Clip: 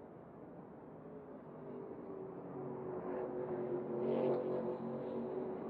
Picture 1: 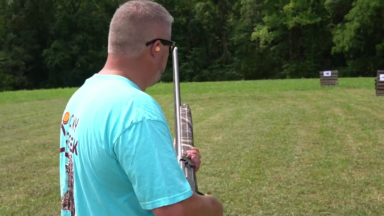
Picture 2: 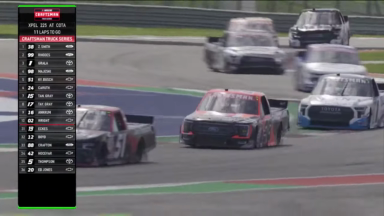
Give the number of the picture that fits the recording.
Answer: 2